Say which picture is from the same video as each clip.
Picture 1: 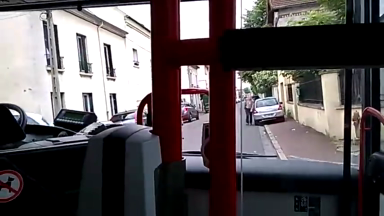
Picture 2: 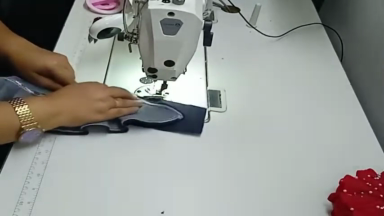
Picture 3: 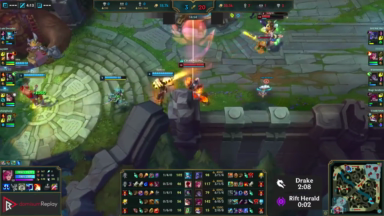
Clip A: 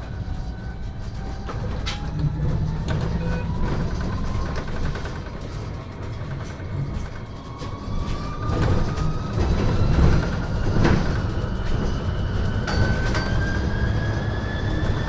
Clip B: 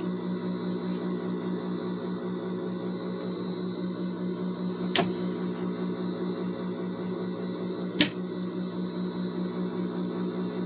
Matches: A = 1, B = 2